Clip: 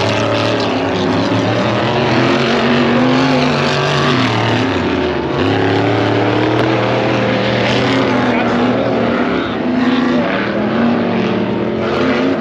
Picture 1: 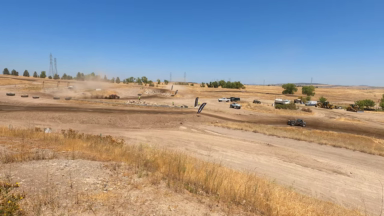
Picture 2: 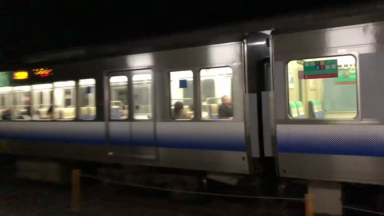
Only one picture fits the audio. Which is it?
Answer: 1